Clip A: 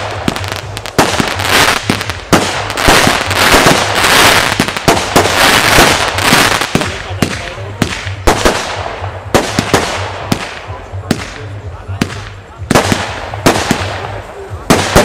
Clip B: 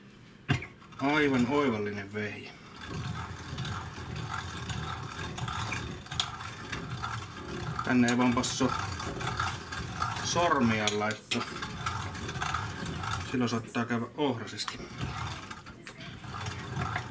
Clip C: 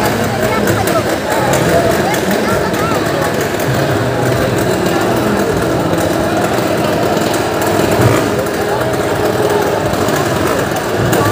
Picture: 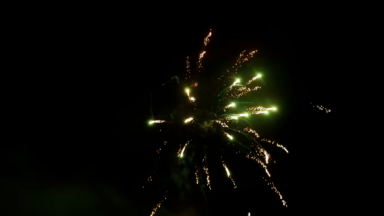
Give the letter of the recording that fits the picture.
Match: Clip A